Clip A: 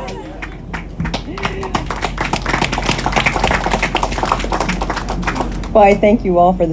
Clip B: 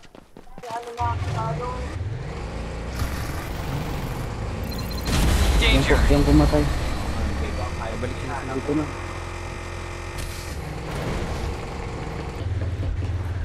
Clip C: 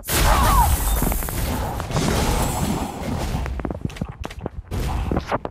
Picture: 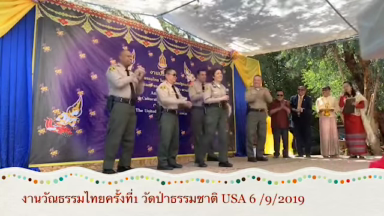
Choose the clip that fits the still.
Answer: A